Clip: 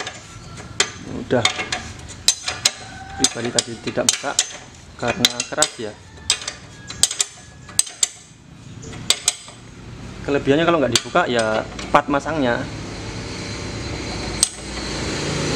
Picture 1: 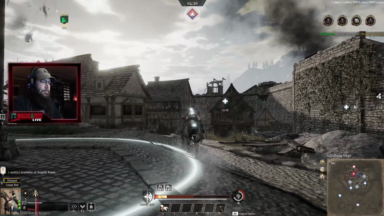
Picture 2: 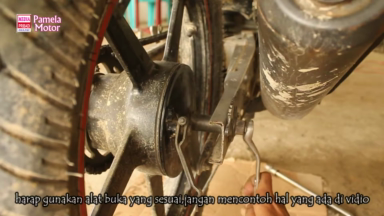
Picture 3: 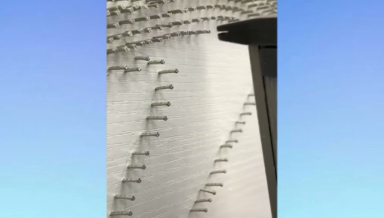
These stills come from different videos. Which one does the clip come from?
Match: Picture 2